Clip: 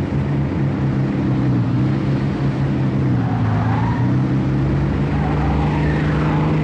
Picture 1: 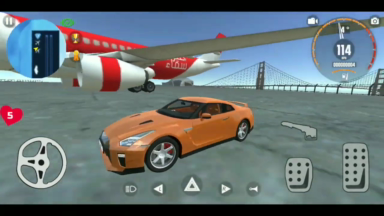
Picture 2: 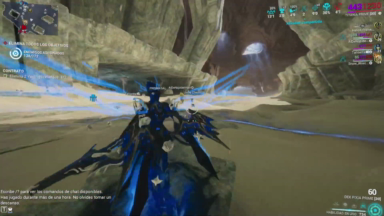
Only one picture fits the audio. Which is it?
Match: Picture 1